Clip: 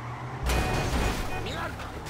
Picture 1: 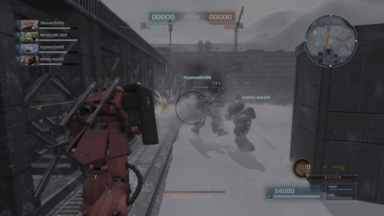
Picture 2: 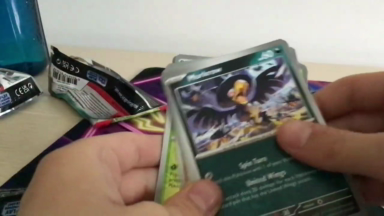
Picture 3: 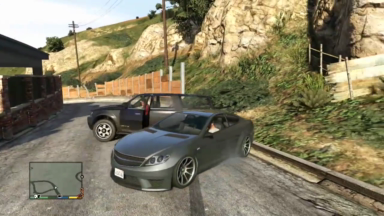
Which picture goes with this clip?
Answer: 3